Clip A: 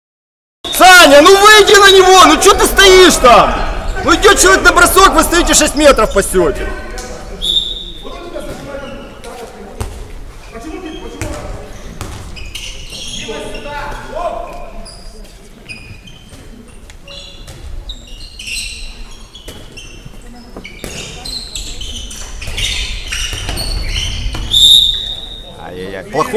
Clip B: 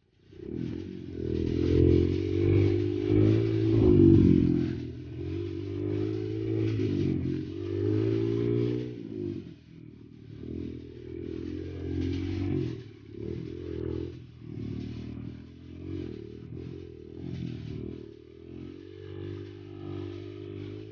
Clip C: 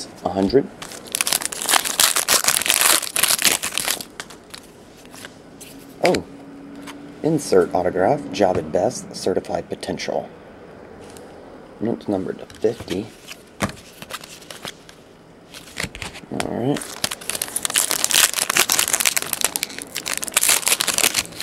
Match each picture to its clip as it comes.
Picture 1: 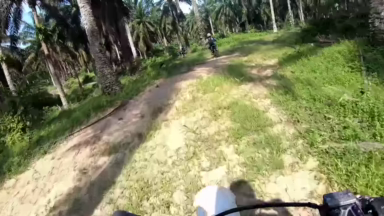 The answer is B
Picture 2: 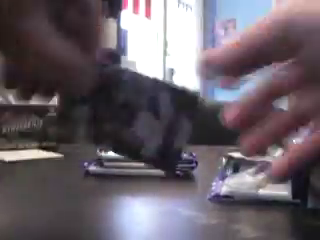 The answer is C